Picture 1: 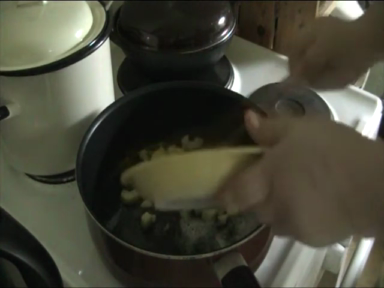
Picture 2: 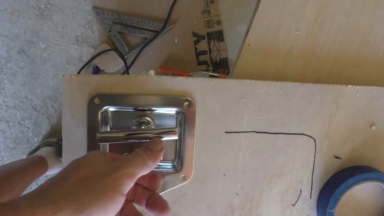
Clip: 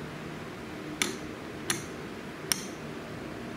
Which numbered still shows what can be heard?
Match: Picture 2